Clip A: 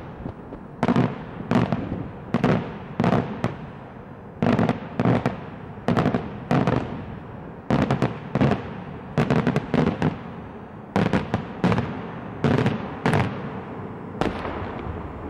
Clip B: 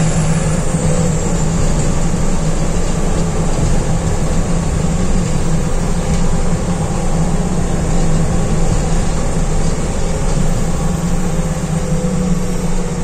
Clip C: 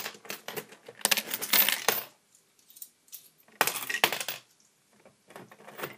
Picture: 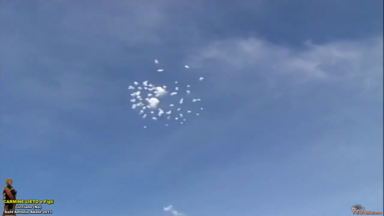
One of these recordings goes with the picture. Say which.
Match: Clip A